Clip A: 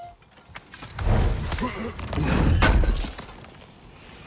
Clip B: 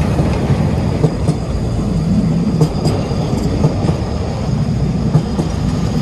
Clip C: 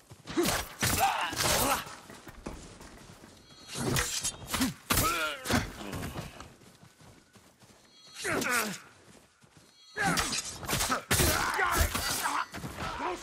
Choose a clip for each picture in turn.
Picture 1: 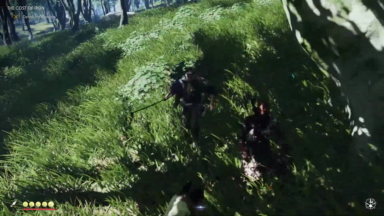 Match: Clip C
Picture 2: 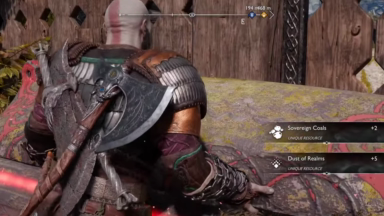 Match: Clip A